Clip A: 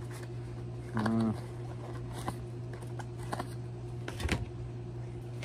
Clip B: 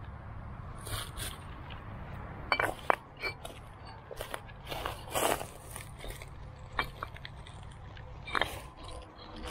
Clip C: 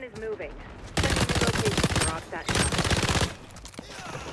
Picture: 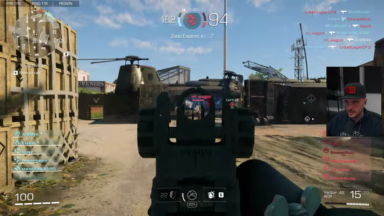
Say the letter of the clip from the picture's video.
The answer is C